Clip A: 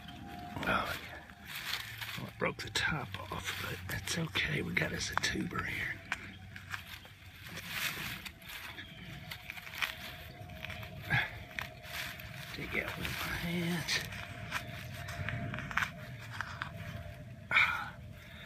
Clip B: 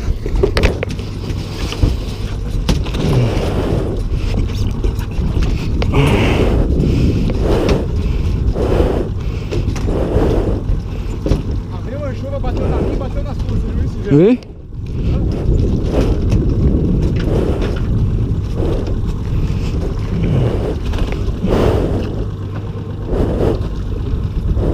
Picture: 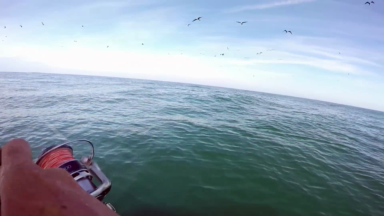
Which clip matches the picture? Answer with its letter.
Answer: B